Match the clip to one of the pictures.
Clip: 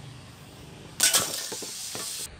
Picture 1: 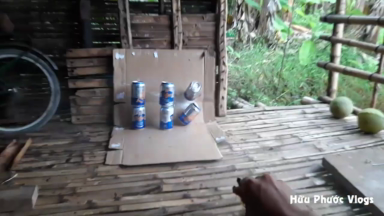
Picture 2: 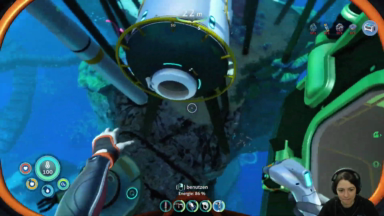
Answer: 1